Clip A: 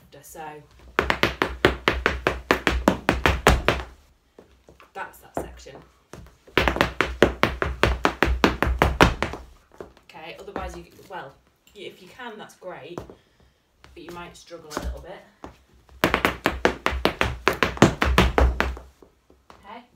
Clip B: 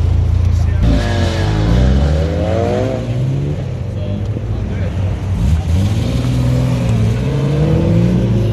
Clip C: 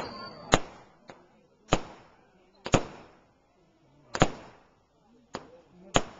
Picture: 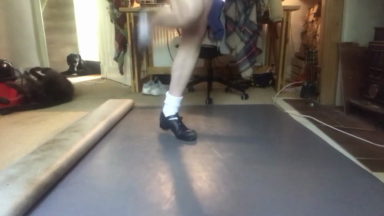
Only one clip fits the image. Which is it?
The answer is A